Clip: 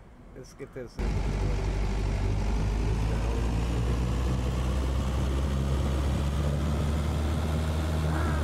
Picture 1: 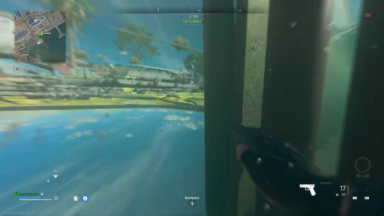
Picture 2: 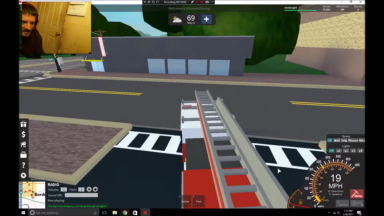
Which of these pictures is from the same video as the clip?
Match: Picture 2